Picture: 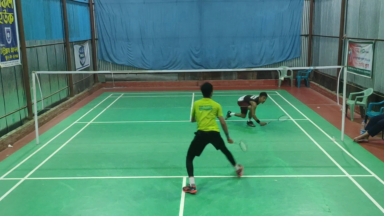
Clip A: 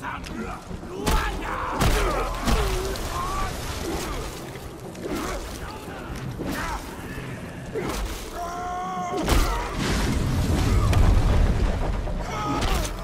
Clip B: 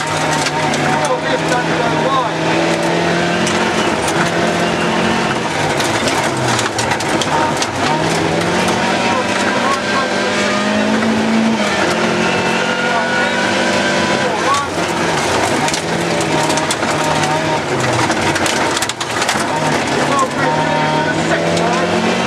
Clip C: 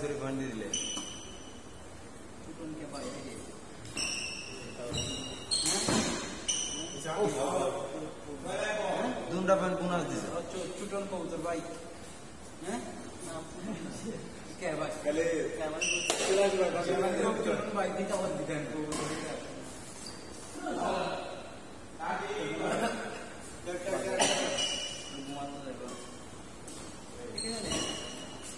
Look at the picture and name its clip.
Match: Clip C